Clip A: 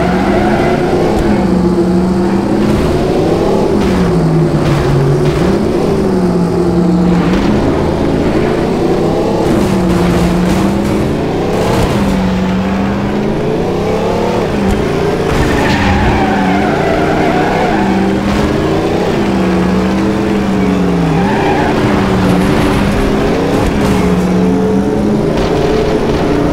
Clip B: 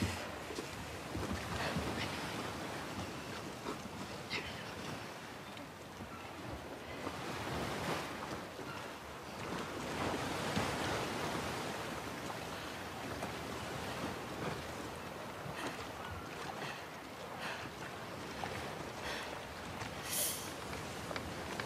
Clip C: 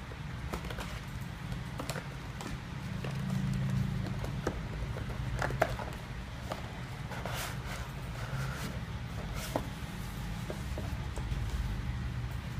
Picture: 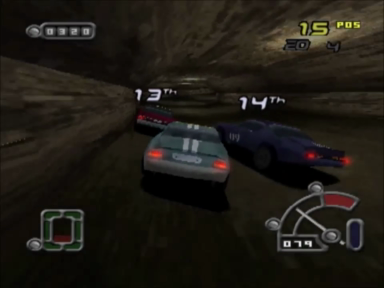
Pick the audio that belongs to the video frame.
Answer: A